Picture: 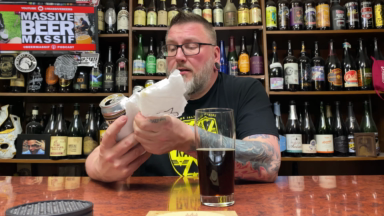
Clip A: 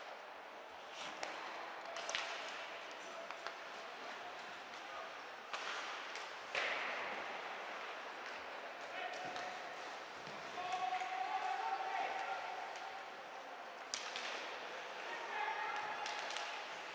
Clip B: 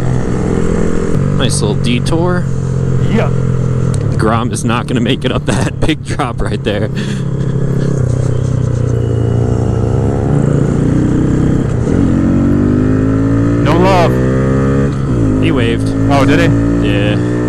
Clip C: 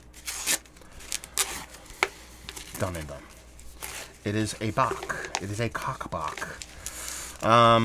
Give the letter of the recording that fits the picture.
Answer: C